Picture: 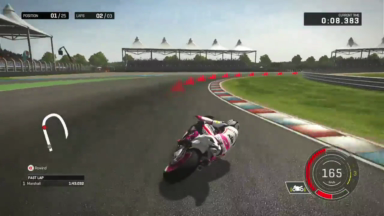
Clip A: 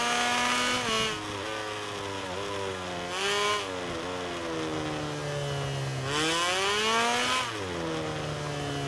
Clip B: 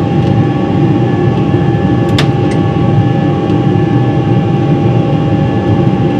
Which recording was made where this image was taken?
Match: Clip A